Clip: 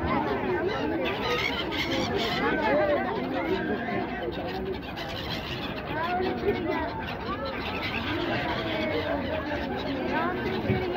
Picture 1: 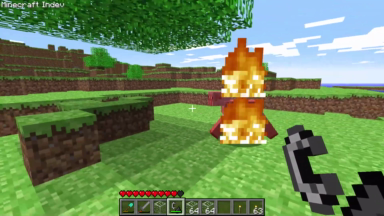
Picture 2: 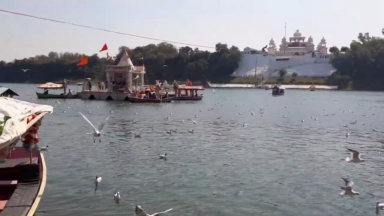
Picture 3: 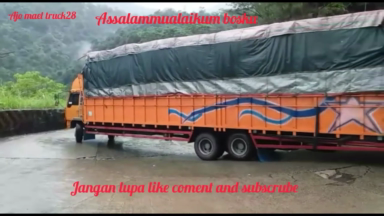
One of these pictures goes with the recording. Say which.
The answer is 2